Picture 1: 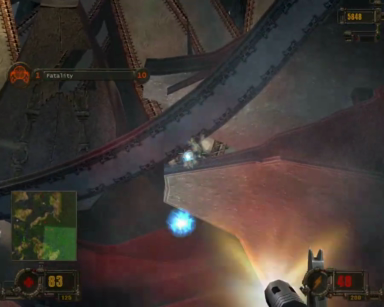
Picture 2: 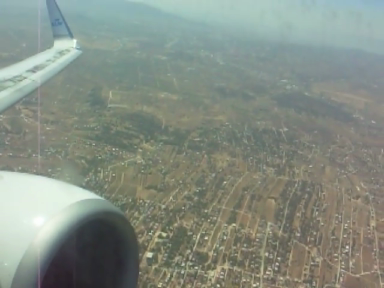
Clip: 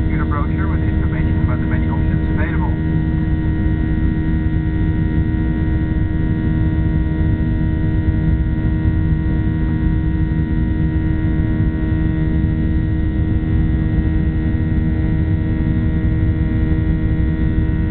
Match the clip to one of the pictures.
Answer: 2